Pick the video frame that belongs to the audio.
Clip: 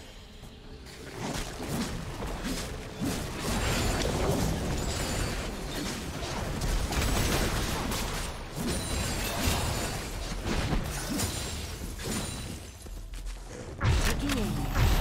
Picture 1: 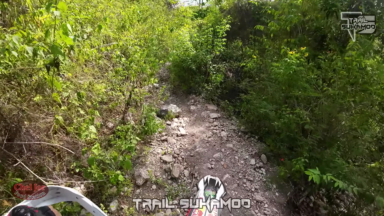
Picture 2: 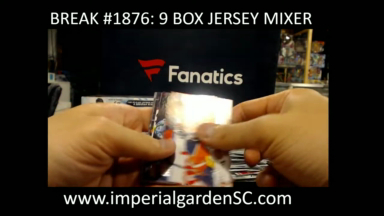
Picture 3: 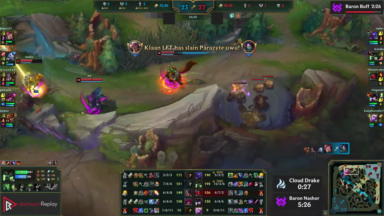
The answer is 3